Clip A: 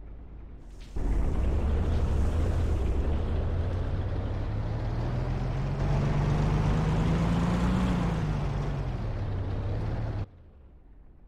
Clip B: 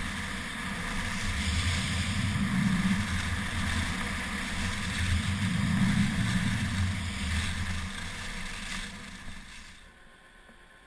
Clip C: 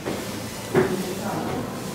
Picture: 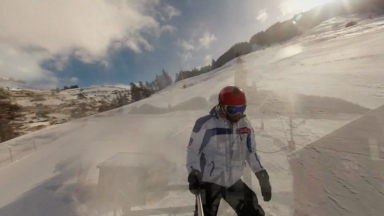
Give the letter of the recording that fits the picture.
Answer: B